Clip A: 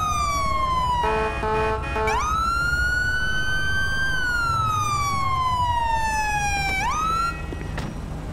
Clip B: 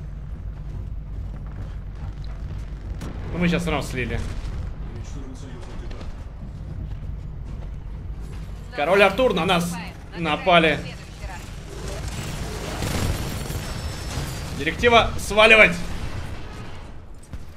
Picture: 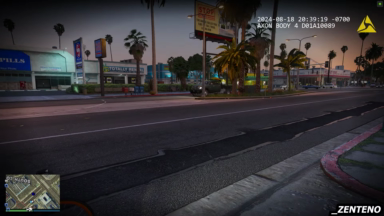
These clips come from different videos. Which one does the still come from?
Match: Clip A